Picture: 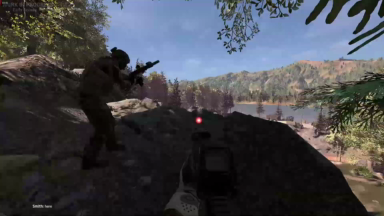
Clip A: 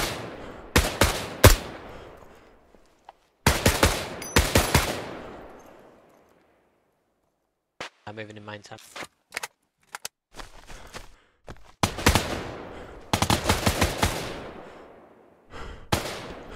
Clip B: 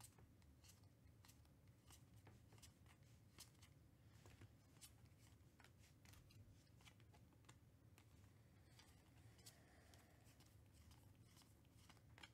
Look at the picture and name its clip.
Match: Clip A